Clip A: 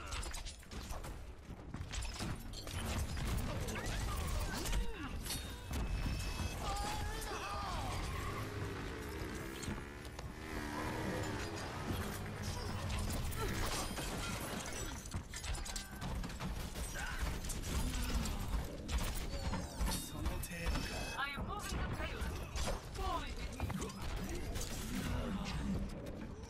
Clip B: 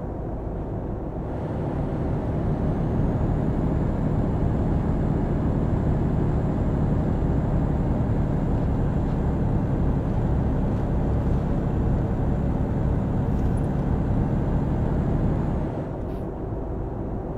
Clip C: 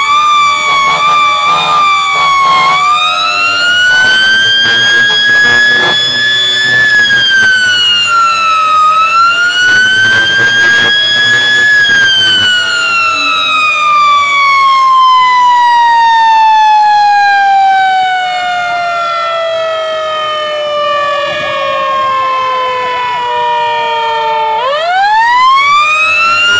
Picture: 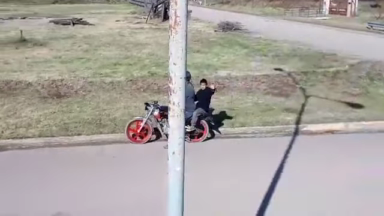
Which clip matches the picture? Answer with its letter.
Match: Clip C